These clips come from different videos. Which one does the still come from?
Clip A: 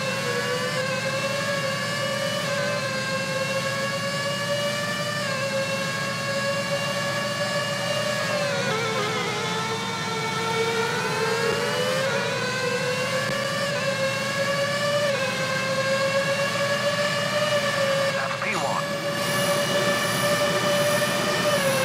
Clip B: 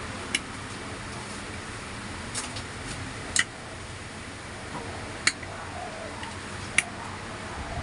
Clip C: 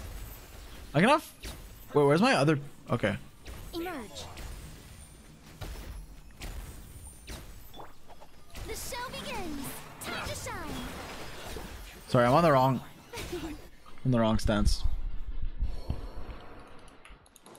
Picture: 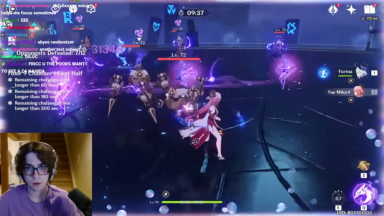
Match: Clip C